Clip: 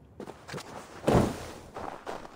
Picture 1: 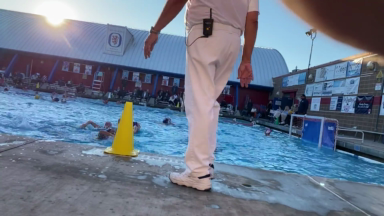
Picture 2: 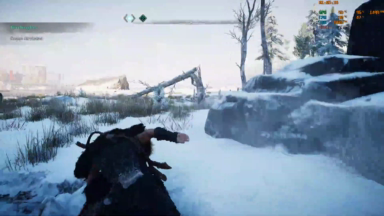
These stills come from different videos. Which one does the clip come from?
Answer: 2